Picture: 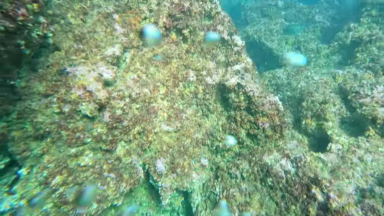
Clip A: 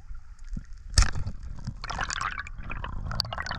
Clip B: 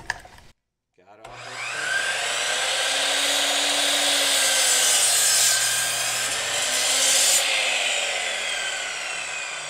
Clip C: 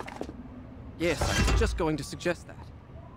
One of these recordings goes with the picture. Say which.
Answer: A